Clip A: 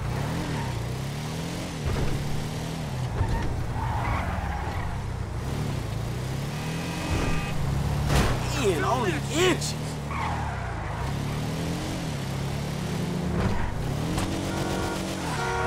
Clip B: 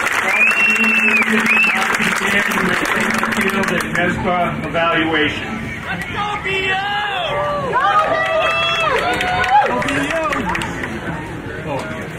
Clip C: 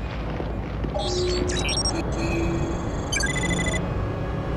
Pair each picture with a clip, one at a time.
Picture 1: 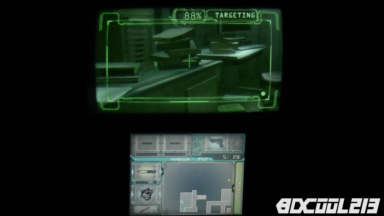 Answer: C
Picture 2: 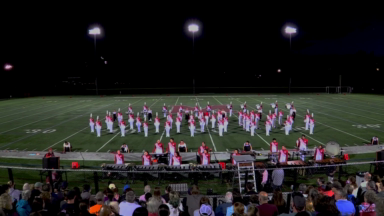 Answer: B